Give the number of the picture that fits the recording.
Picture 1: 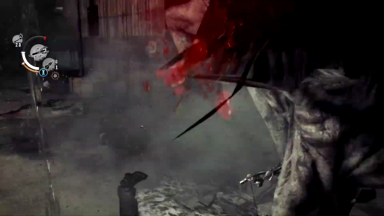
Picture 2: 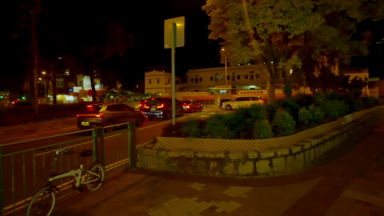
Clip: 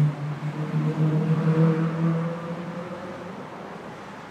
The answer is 2